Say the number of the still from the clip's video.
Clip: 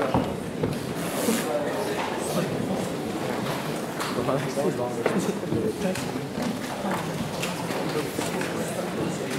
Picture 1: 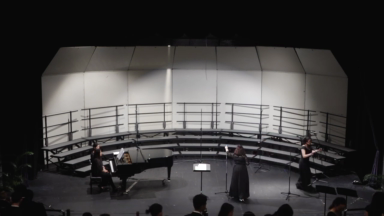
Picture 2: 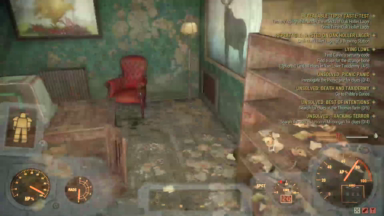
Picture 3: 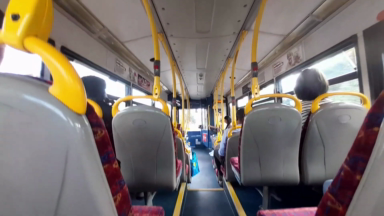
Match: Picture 1